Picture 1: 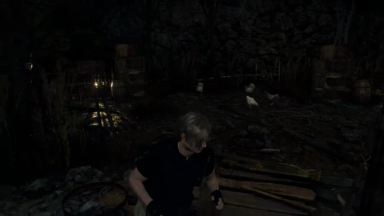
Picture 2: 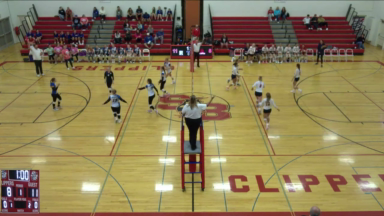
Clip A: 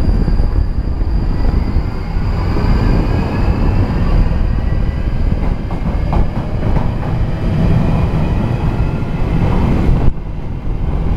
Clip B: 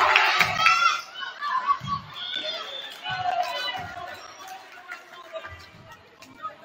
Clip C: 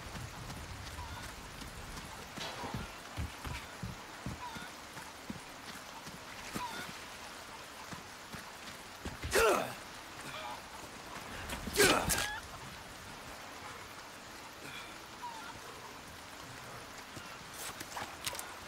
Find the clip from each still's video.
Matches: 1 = C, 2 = B